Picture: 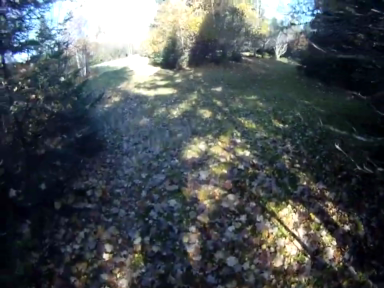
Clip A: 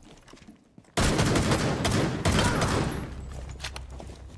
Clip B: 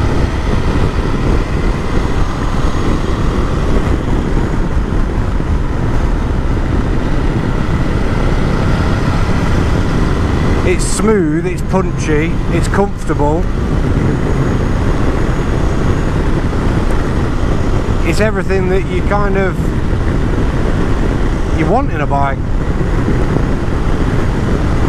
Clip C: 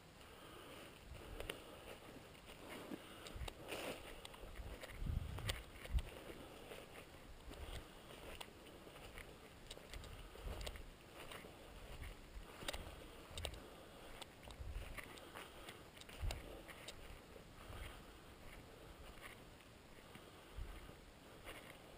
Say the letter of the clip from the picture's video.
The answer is C